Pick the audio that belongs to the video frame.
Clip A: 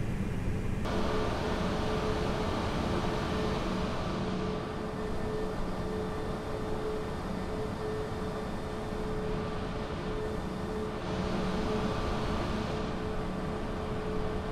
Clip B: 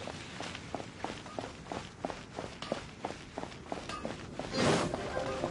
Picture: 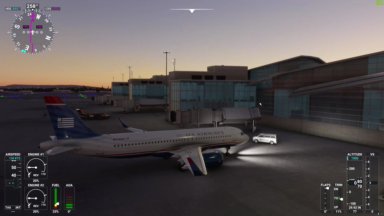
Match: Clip A